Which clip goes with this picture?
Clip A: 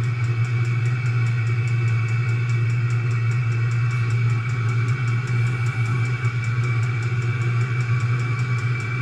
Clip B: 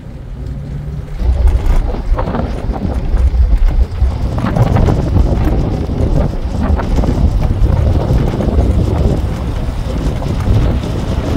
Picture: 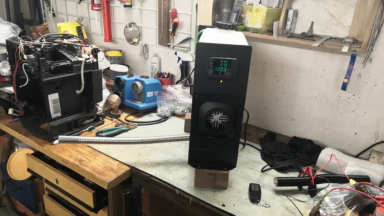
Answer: A